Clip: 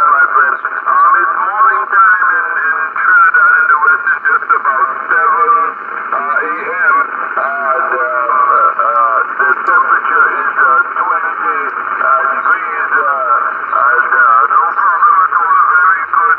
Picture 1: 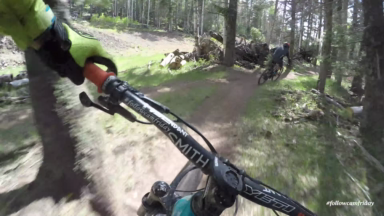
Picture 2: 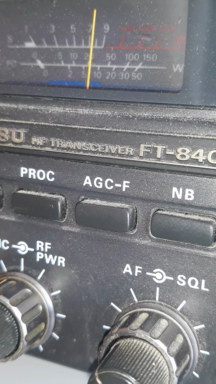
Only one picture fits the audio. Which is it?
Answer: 2